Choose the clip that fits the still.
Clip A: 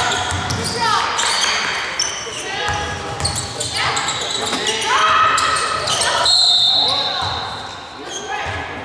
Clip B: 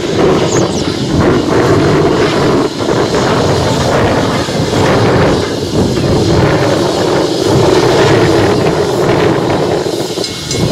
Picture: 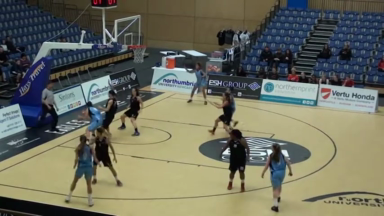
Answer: A